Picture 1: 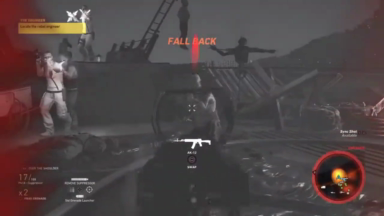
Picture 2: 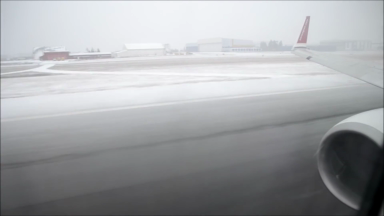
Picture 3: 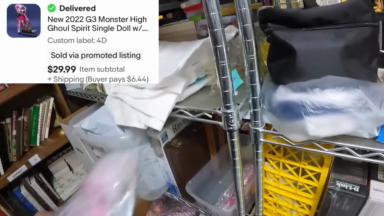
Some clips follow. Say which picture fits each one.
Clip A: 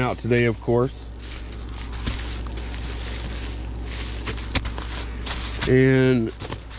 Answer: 3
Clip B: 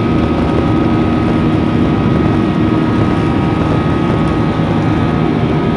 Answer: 2